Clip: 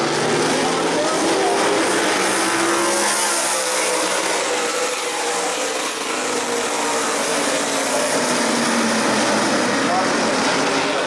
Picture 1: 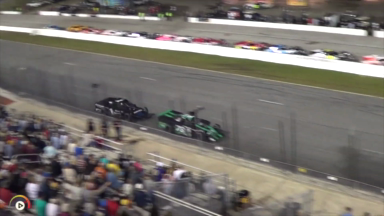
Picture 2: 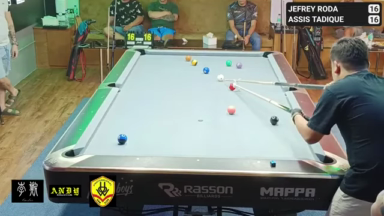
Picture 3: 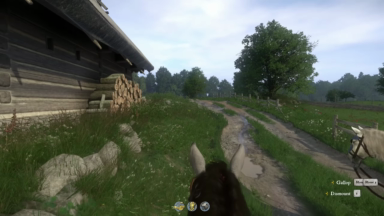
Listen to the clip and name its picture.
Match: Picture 1